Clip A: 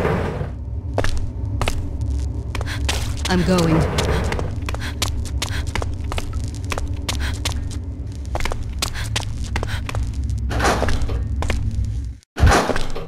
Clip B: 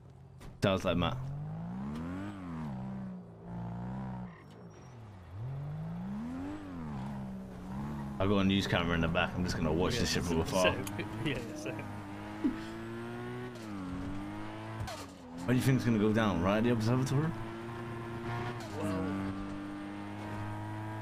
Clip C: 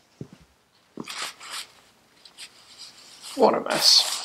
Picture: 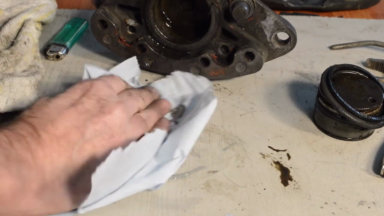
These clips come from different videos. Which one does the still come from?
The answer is C